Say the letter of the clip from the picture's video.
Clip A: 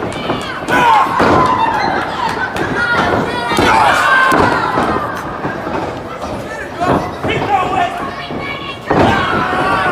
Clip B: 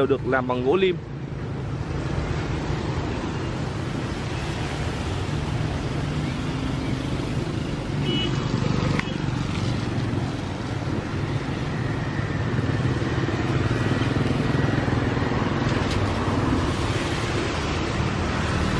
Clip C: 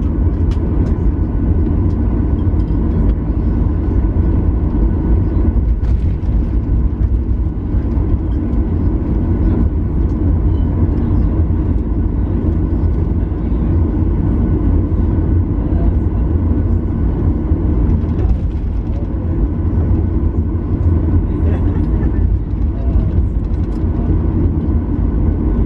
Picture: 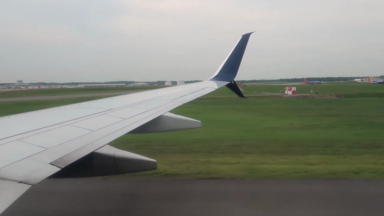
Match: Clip C